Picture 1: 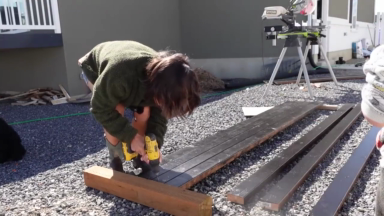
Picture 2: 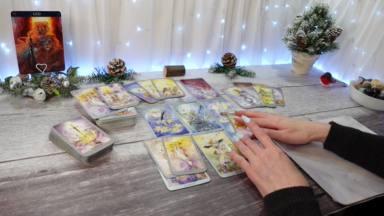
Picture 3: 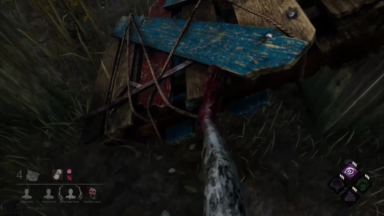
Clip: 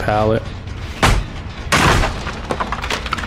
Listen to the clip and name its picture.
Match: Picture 3